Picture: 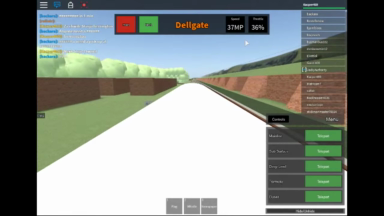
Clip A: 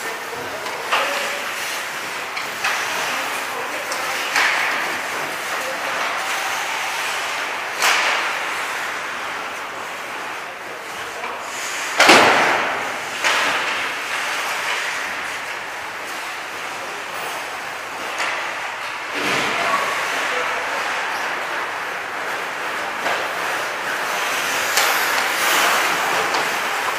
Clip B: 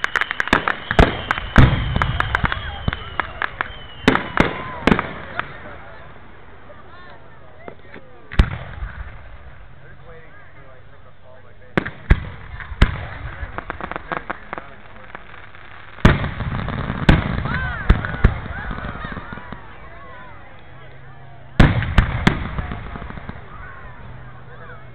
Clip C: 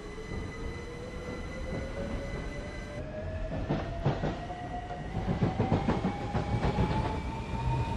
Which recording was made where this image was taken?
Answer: C